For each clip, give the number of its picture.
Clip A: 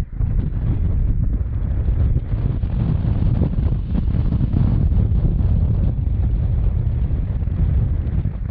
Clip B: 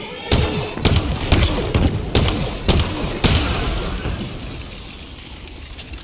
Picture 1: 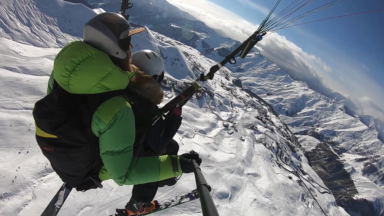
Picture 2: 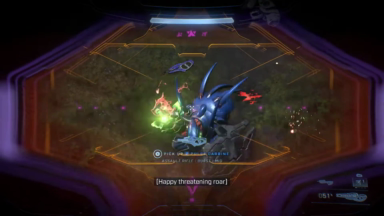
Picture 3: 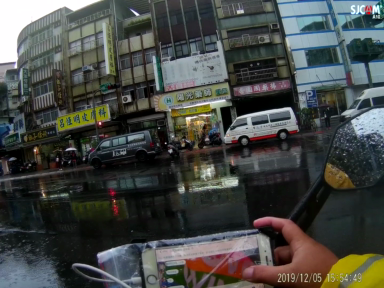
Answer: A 1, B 2